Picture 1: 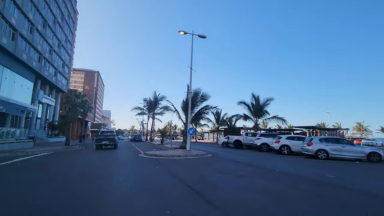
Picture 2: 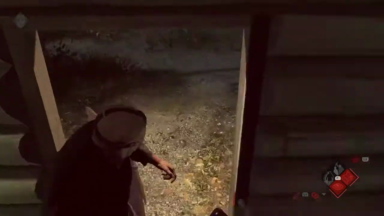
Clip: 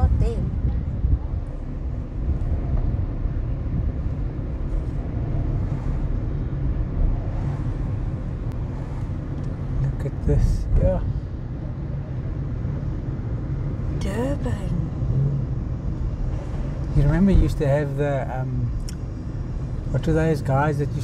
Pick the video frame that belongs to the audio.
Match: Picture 1